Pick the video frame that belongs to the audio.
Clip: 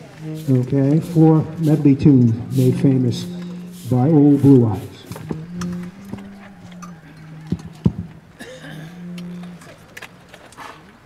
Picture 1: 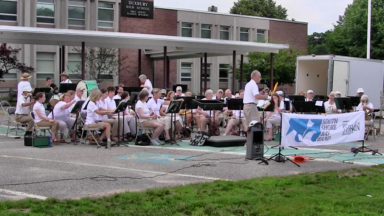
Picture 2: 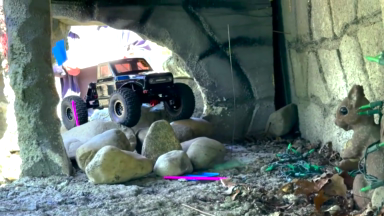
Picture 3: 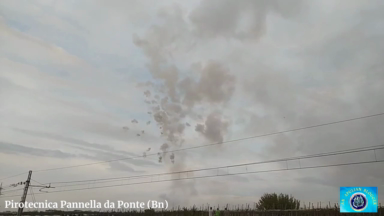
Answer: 1